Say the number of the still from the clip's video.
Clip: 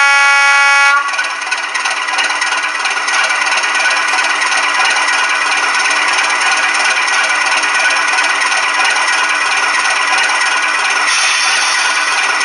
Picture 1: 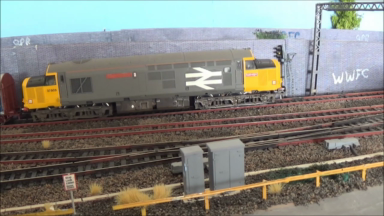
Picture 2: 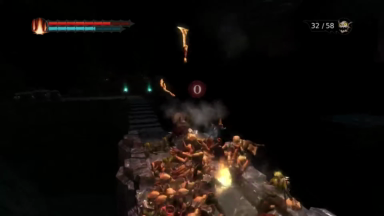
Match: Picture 1